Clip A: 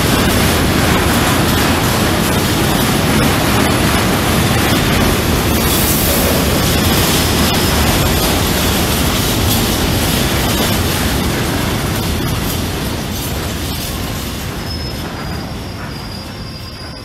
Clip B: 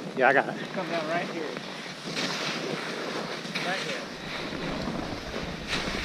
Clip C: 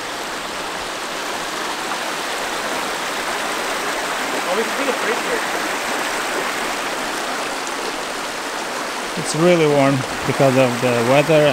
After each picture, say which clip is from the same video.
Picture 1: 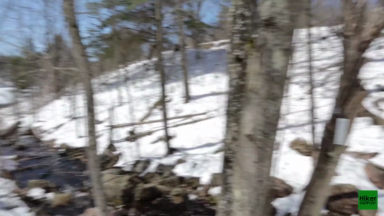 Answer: C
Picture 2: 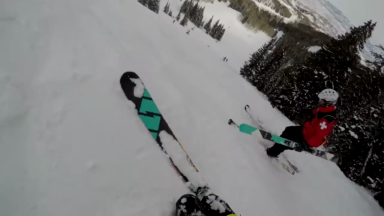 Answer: B